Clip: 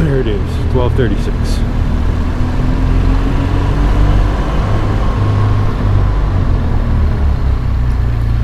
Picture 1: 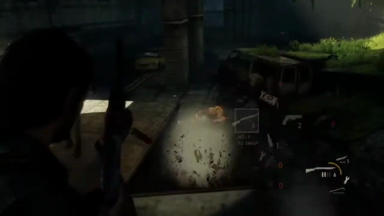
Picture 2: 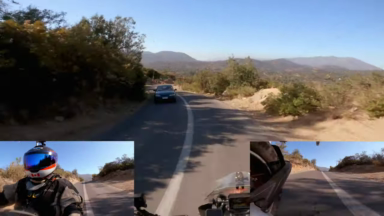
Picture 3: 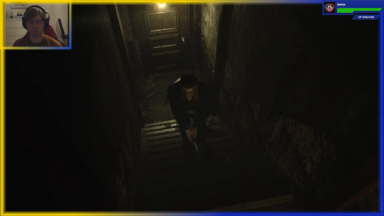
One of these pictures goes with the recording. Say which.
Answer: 2